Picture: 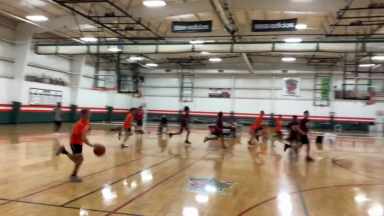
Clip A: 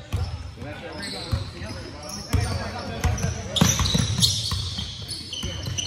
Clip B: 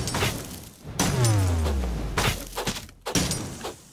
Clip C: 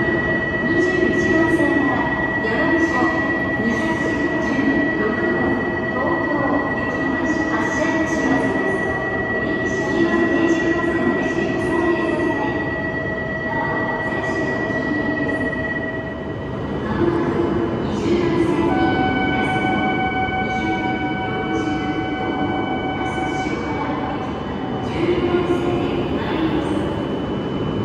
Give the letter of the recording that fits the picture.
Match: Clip A